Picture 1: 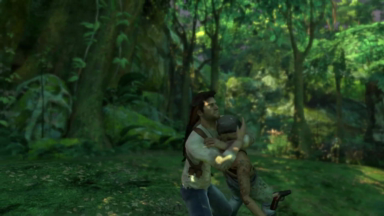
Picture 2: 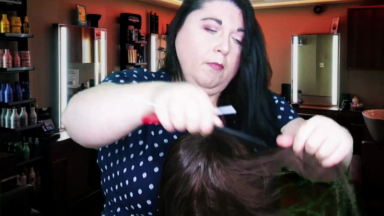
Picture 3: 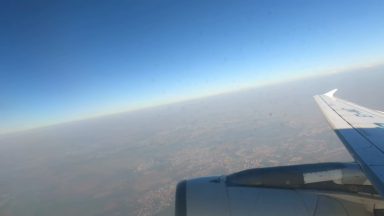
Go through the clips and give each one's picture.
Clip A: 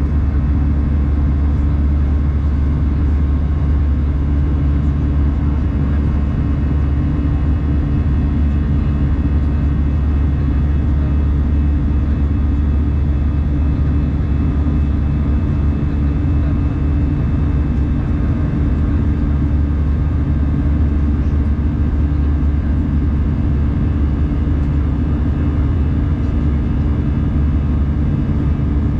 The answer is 3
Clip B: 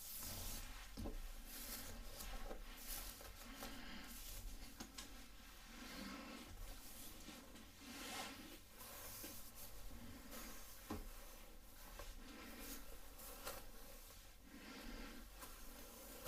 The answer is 2